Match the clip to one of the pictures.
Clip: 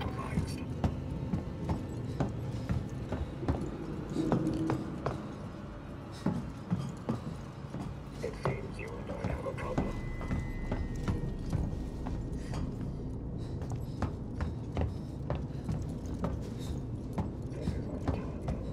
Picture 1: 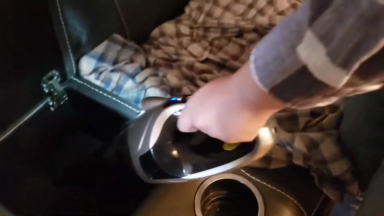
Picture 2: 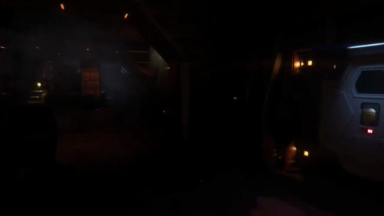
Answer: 2